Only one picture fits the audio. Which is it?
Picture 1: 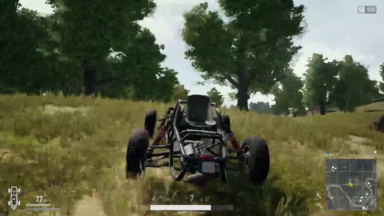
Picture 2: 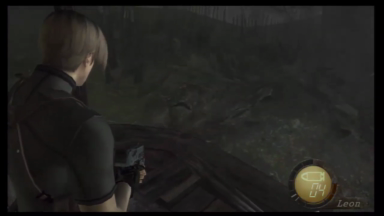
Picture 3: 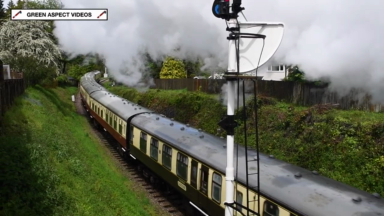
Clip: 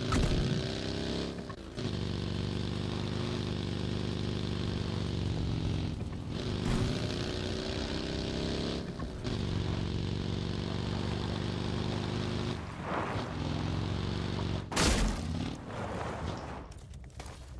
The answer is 1